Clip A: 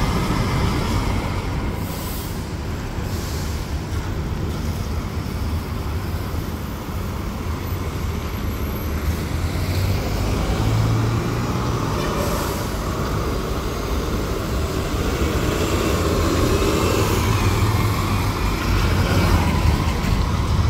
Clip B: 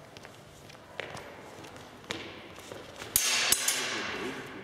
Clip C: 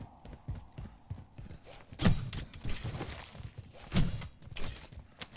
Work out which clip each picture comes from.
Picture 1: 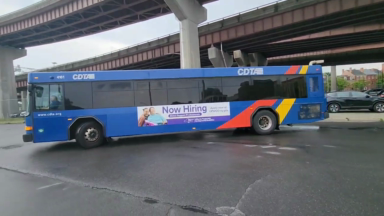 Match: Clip A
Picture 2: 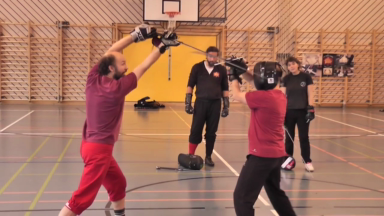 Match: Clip B